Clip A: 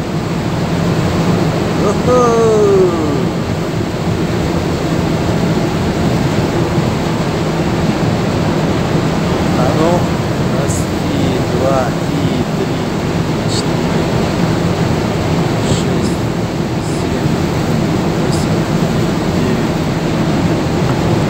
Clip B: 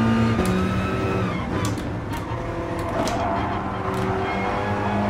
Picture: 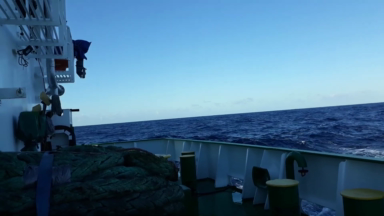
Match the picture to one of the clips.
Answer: A